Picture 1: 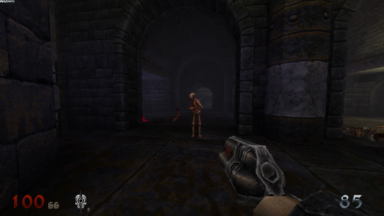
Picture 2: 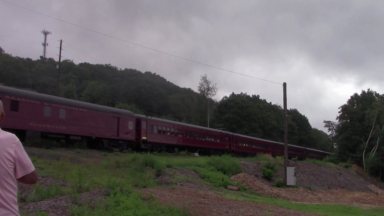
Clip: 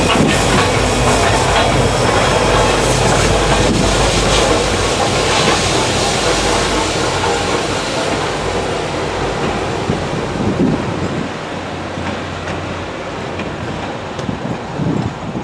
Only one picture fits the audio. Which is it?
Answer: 2